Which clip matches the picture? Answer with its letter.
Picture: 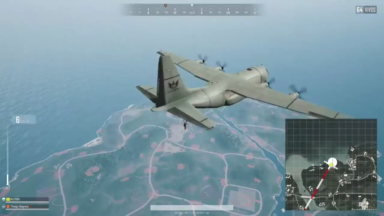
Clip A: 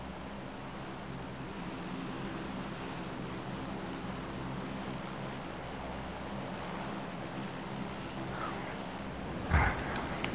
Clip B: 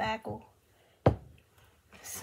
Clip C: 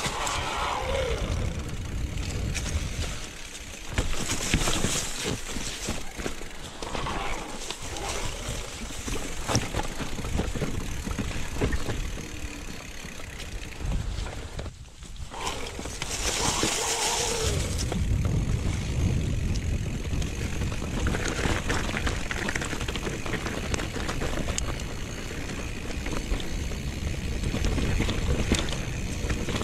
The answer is A